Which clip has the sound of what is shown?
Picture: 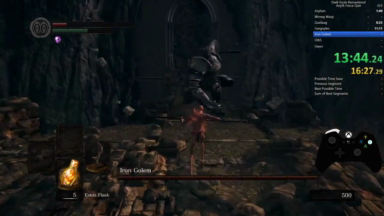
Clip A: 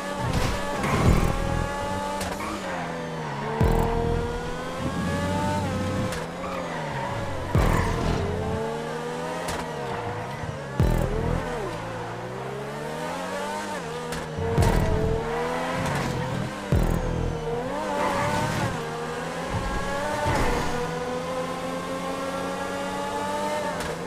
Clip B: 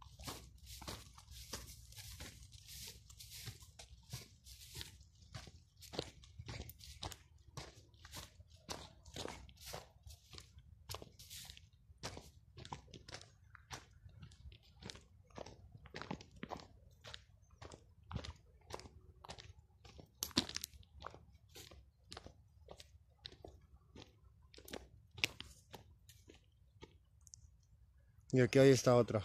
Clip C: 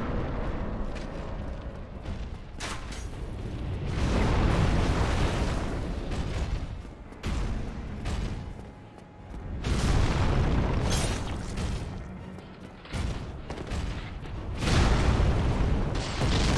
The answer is C